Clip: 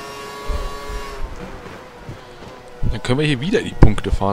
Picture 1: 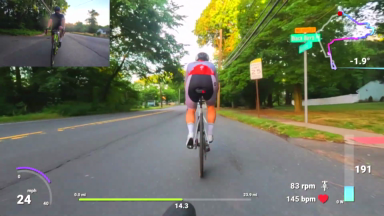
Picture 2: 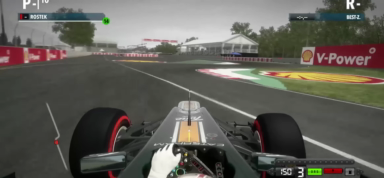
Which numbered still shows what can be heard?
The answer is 2